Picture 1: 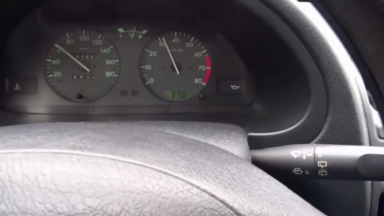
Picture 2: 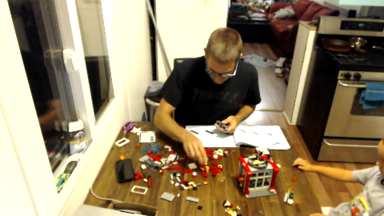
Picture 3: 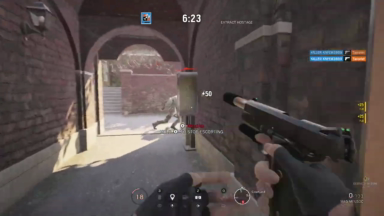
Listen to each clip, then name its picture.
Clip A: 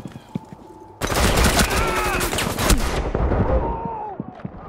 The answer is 3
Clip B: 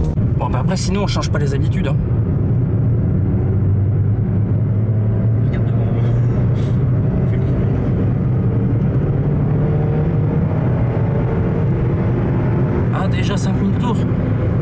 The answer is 1